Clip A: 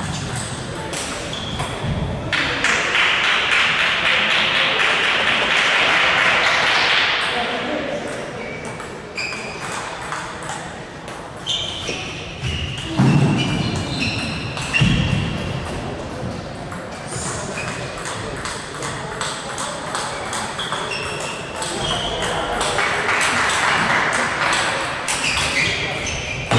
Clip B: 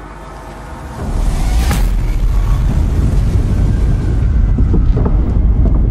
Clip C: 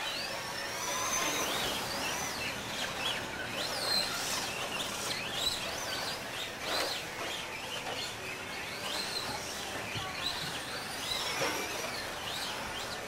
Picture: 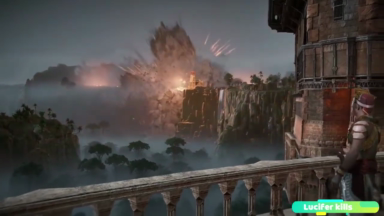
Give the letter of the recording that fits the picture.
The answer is B